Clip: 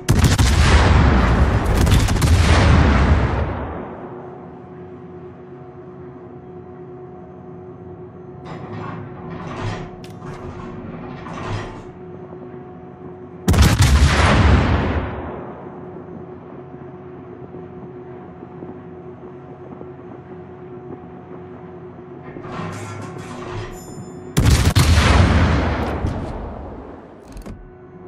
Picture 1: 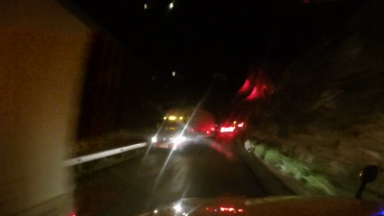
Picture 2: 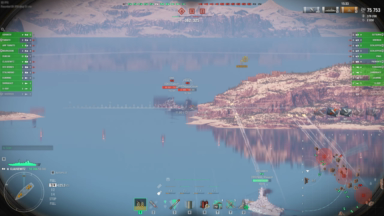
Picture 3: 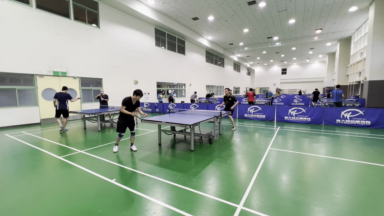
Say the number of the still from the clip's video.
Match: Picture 2